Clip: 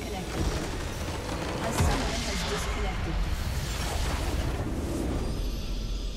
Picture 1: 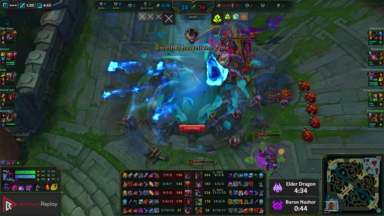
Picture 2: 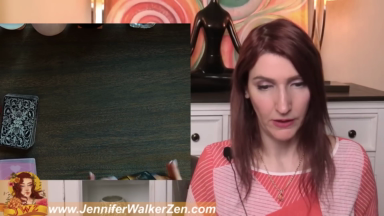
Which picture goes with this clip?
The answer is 1